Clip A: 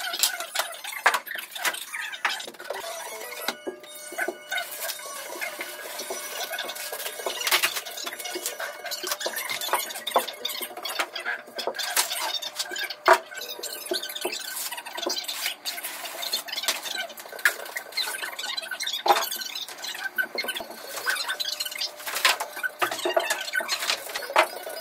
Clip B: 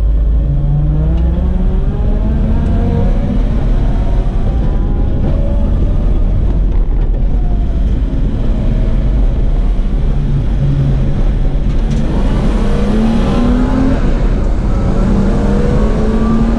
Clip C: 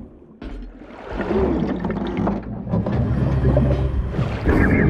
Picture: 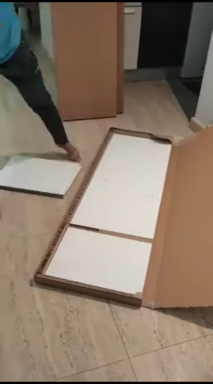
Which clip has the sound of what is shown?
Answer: A